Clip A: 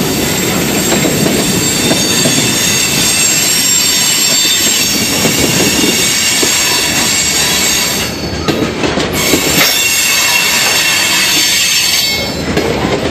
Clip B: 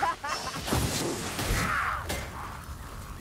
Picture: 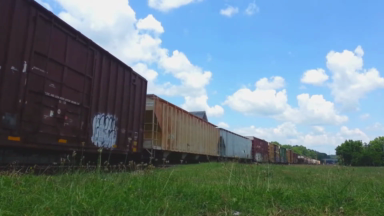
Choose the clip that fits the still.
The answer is A